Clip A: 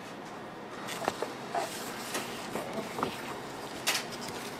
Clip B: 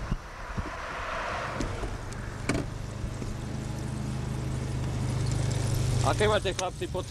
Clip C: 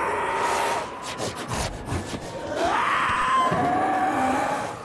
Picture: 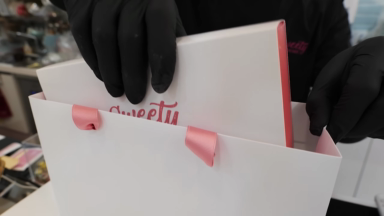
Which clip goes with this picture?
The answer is A